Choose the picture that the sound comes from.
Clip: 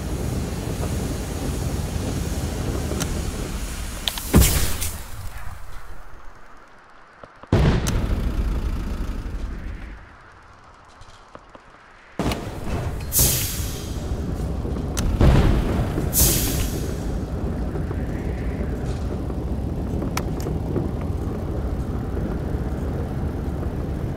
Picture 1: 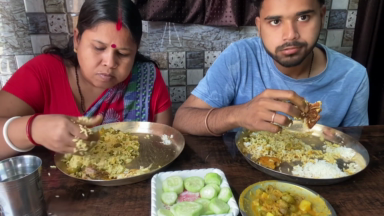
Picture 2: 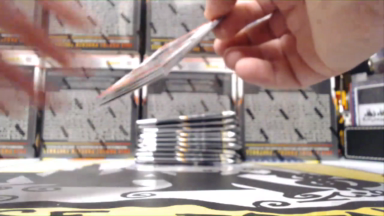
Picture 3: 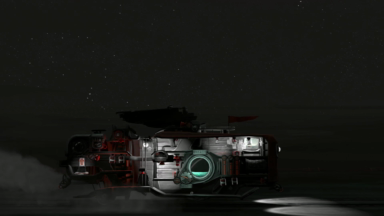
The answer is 3